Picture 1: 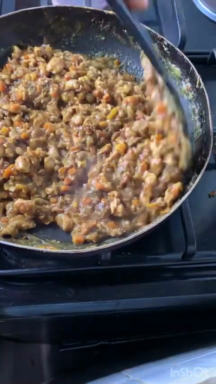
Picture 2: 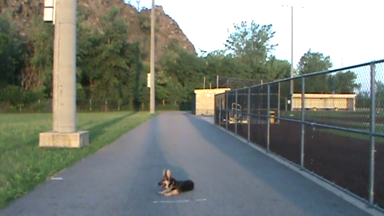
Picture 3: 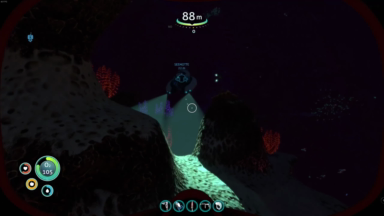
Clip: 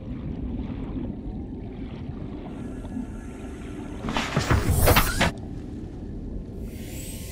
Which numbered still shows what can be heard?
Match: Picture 3